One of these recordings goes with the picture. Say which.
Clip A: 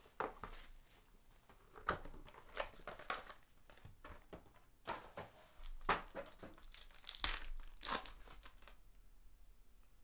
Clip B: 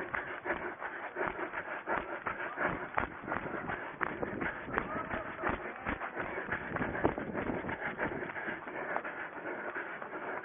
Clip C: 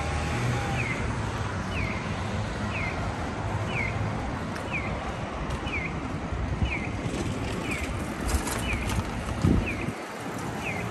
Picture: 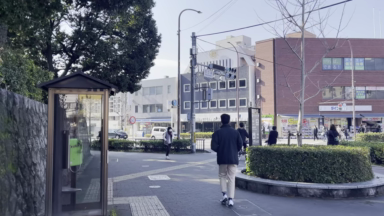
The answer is C